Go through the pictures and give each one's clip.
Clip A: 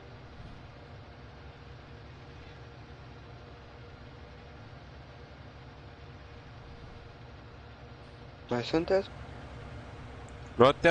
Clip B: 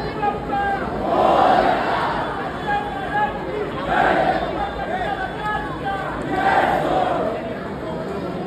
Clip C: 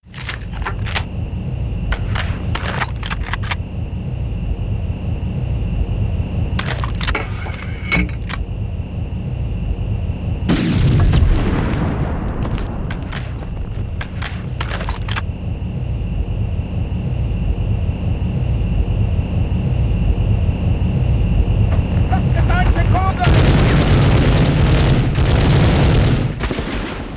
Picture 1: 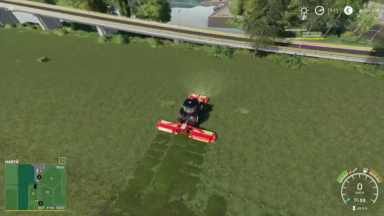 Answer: A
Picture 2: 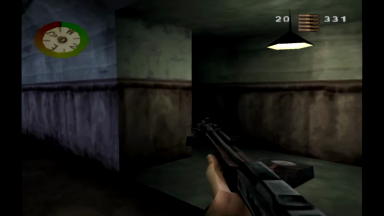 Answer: C